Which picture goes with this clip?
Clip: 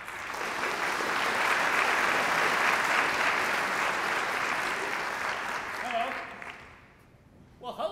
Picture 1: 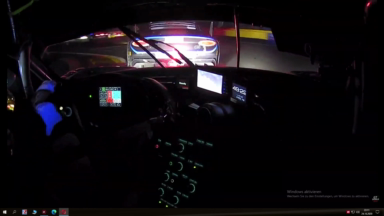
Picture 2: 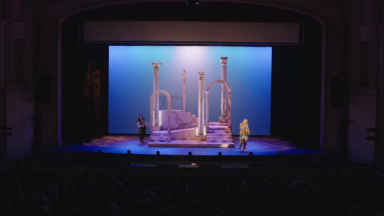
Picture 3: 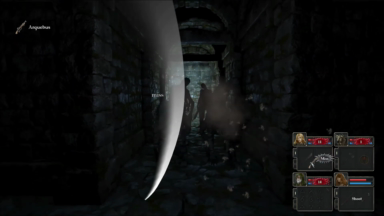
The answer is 2